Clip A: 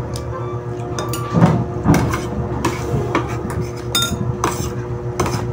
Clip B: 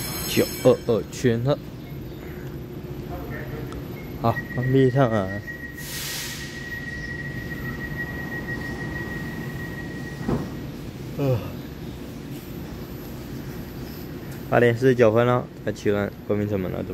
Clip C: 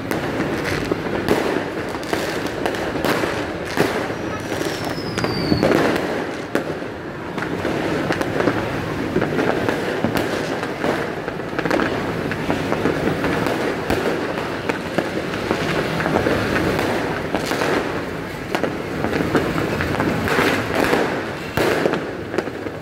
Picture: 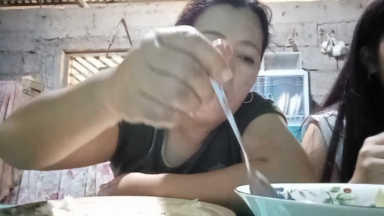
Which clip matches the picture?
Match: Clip A